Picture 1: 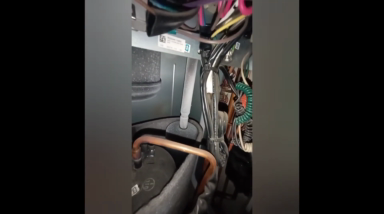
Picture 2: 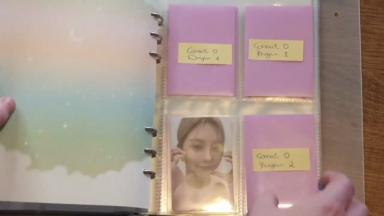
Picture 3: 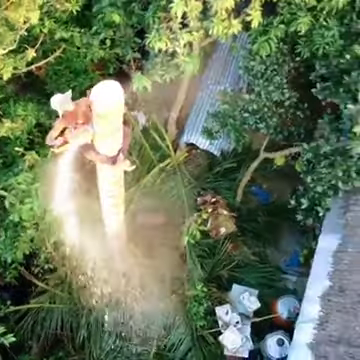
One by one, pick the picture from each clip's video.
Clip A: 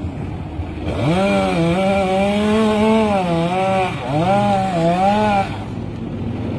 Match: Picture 3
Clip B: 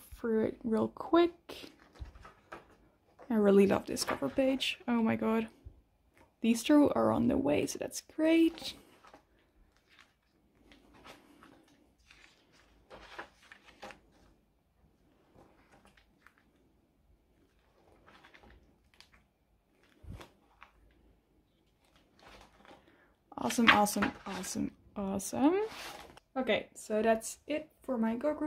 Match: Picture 2